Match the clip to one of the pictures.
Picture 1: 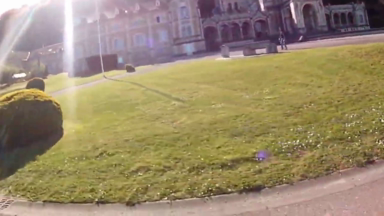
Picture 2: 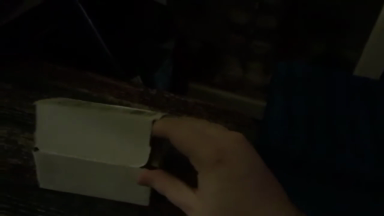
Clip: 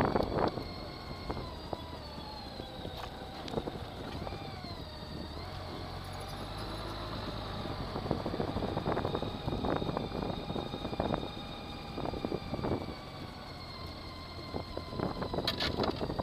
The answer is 1